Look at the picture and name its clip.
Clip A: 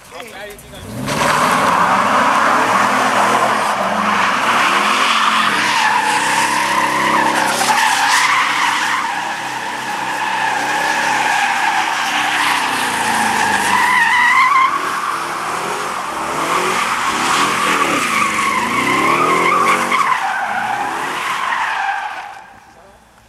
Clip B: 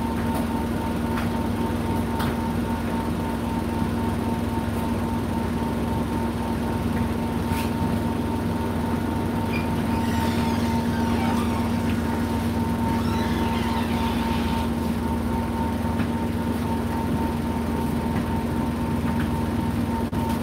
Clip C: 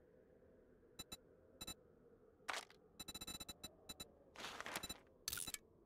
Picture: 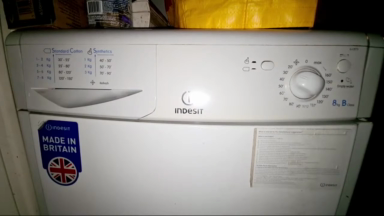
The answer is B